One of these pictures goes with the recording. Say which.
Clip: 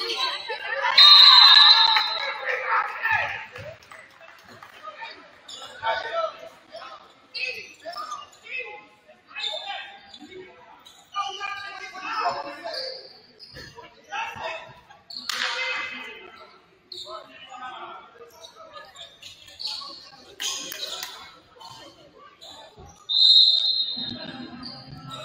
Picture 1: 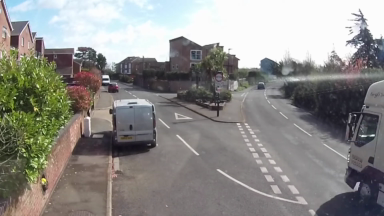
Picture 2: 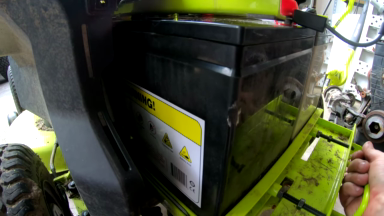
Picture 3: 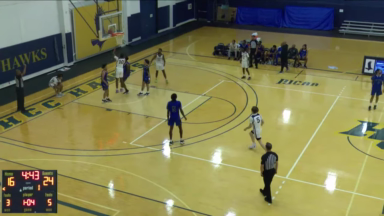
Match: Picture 3